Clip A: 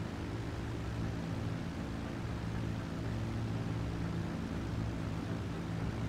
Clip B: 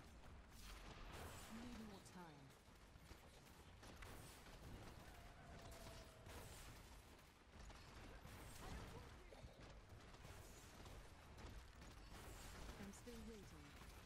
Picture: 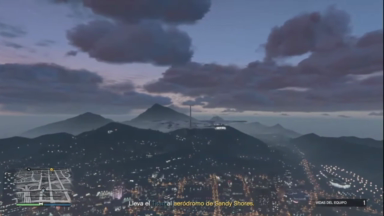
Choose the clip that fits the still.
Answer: A